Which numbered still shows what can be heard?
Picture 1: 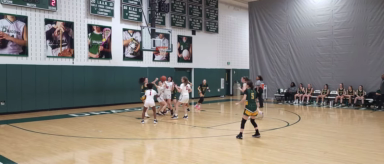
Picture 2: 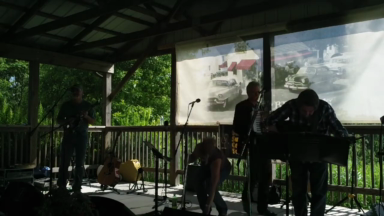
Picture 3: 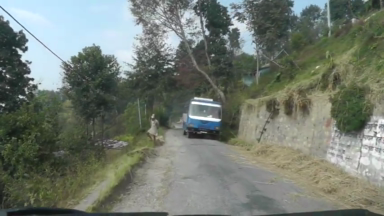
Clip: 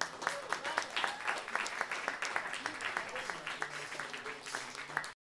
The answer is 2